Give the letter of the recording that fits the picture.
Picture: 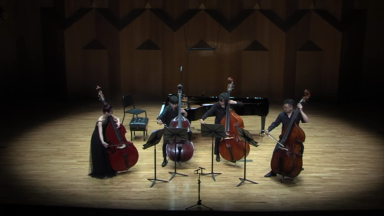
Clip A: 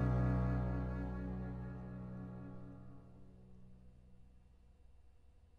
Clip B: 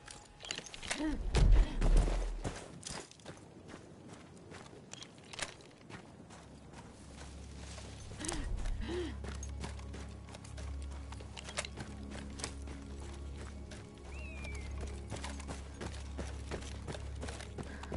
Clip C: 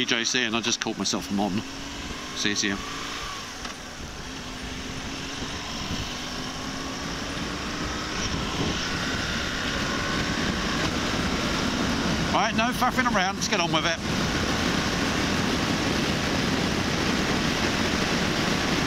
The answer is A